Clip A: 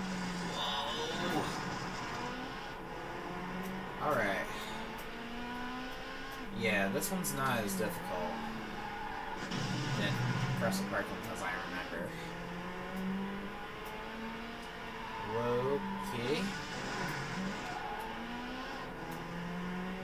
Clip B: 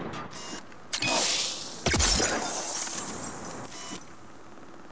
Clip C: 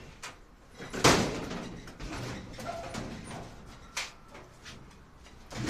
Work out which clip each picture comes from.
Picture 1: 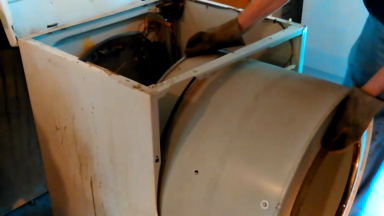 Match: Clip C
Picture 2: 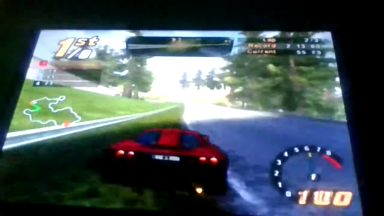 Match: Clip A